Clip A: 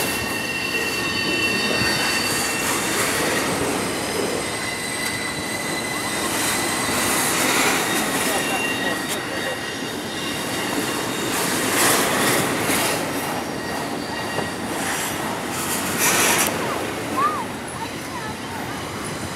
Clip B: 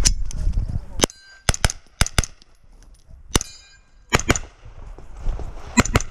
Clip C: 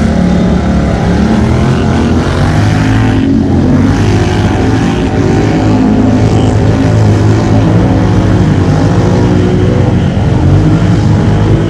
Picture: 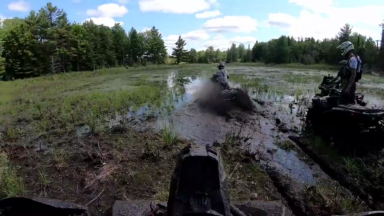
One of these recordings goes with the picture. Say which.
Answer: C